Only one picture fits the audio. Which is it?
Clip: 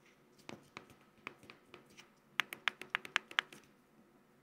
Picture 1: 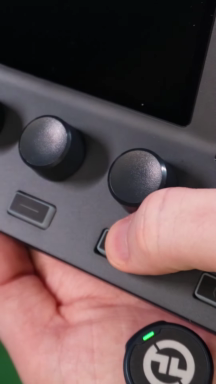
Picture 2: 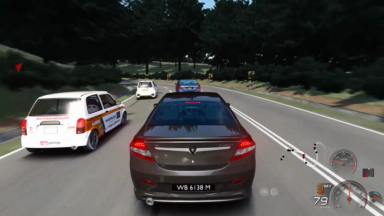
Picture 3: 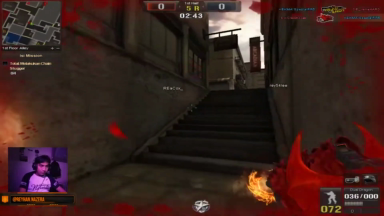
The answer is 1